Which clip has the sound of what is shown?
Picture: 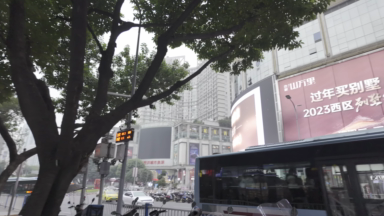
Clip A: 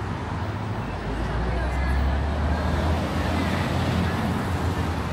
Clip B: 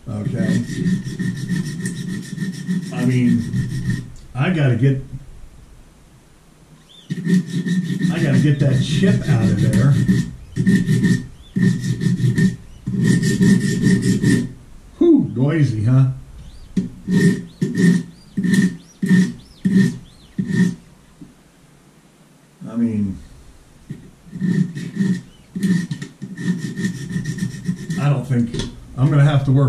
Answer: A